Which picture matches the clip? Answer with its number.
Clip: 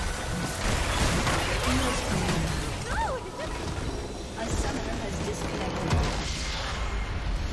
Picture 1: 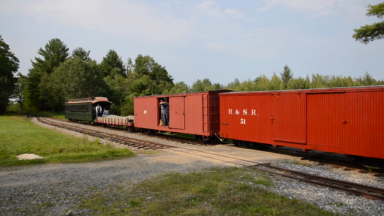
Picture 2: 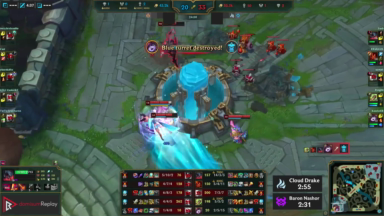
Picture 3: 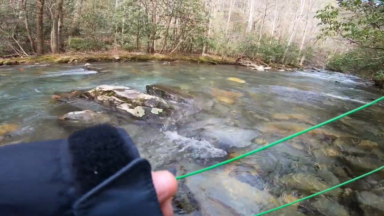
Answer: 2